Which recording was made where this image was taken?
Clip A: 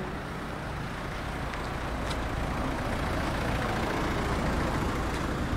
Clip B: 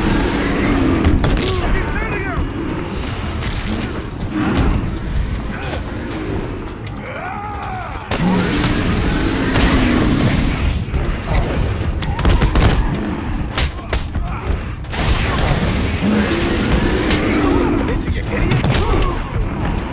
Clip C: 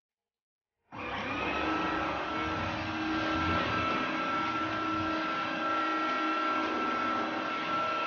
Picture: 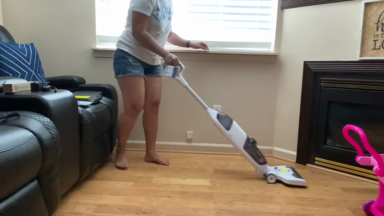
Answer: C